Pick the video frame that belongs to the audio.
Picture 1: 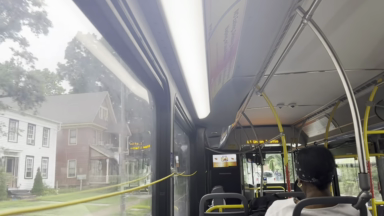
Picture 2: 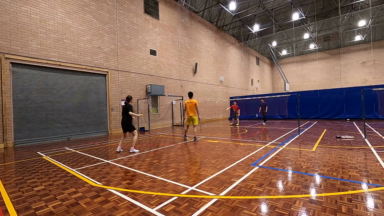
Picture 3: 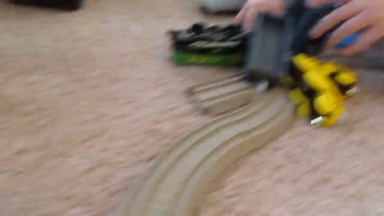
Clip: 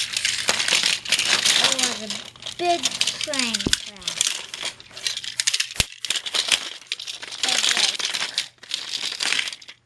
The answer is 3